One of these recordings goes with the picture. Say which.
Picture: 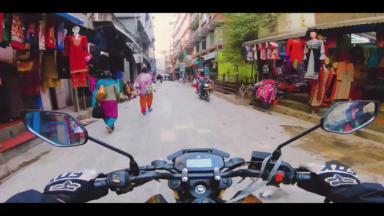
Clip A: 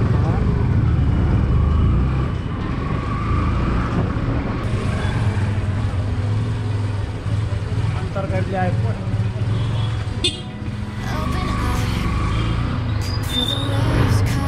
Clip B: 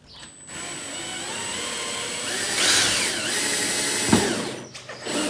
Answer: A